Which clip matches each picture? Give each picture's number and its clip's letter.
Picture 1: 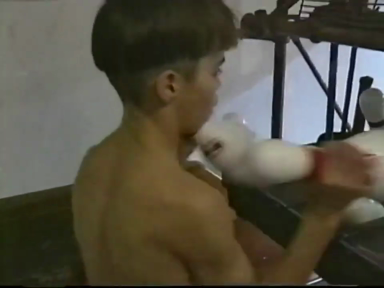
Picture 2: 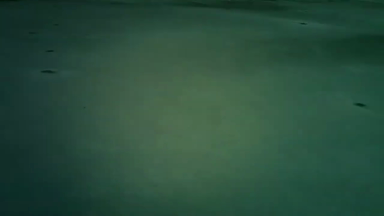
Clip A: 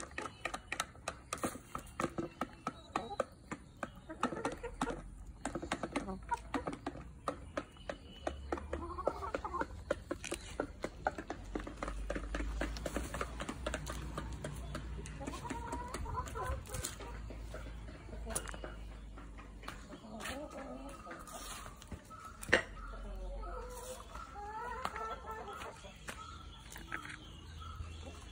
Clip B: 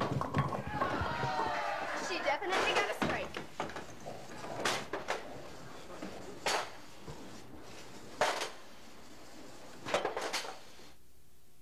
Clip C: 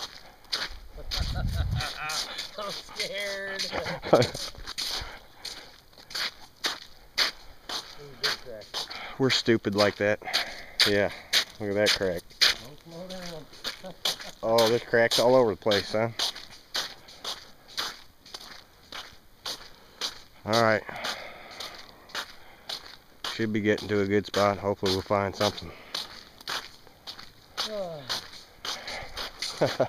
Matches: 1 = B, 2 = C